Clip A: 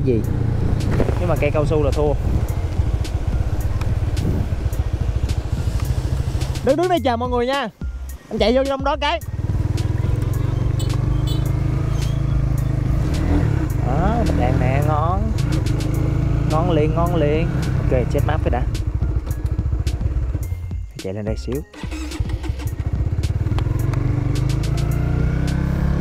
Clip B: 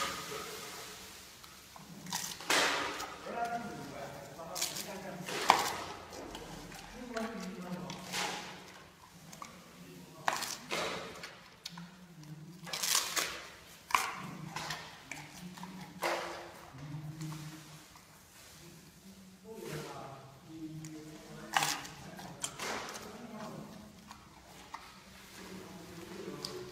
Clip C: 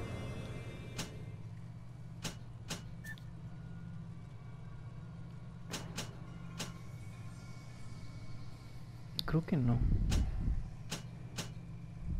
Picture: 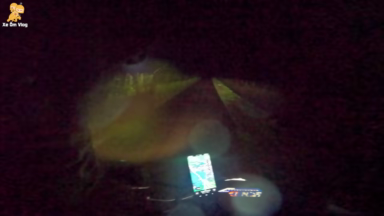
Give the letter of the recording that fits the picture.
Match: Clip A